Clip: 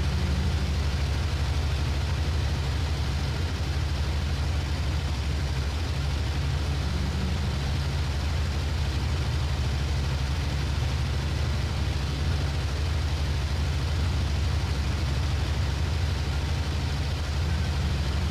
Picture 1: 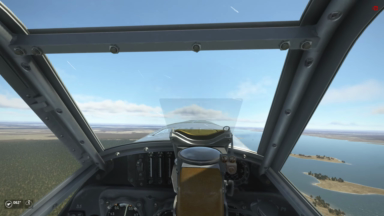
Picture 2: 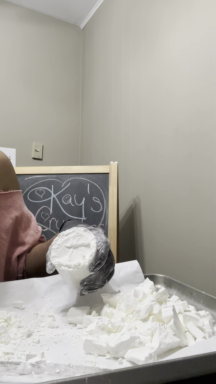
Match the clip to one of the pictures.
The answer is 1